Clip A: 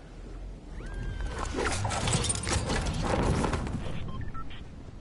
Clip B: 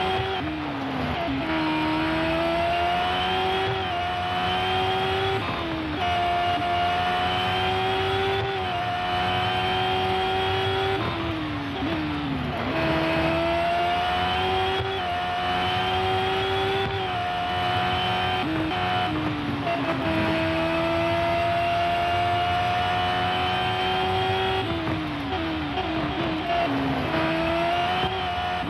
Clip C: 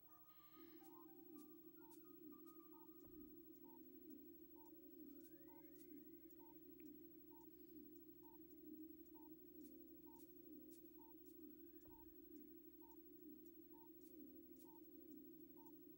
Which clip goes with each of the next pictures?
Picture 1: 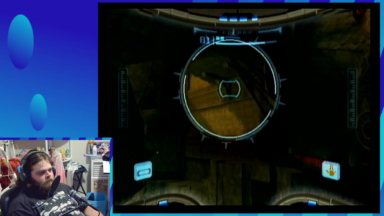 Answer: C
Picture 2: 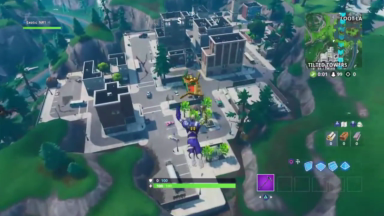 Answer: A